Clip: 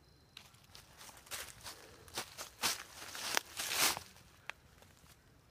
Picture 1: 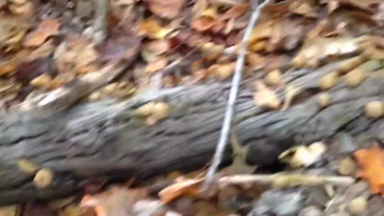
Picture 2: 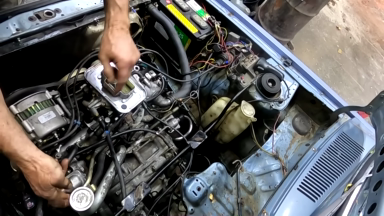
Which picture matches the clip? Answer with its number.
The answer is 1